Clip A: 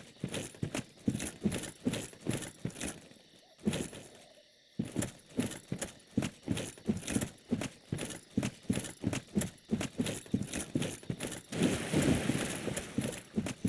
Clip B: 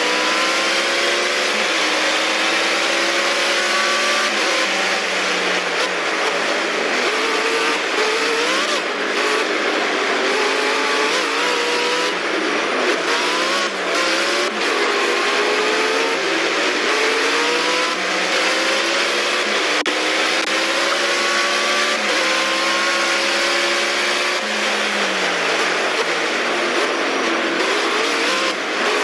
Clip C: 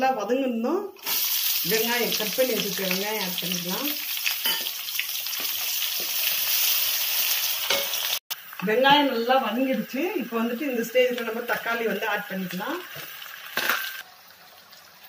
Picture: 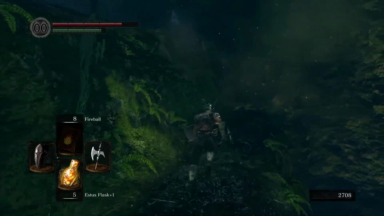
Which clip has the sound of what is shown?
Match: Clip A